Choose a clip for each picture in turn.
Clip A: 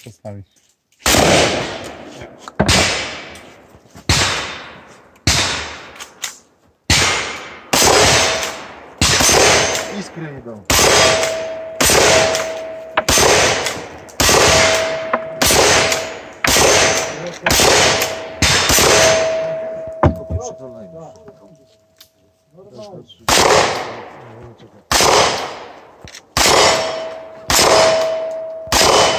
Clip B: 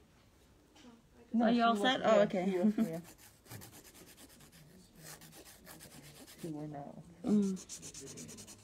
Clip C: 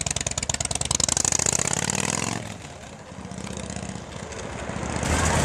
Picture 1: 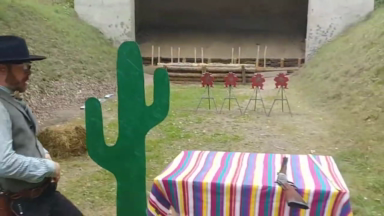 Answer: A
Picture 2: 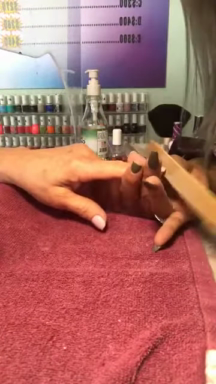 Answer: B